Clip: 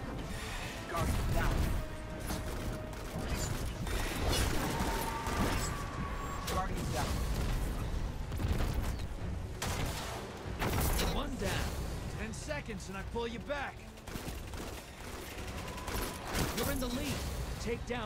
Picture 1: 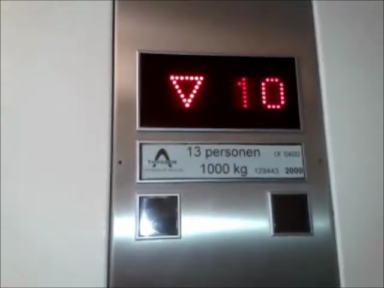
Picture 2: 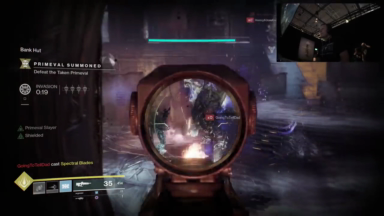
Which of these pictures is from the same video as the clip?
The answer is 2